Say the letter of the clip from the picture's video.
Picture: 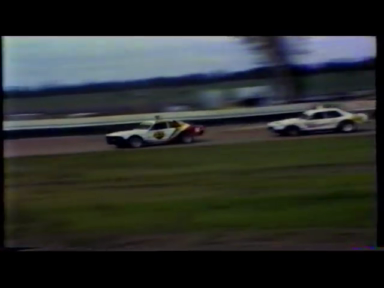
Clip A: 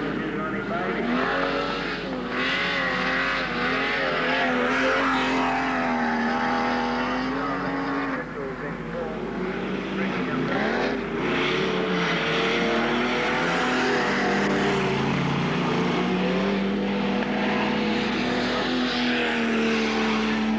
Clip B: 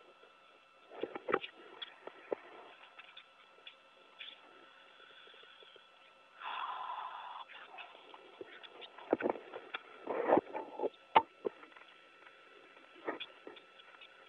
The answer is A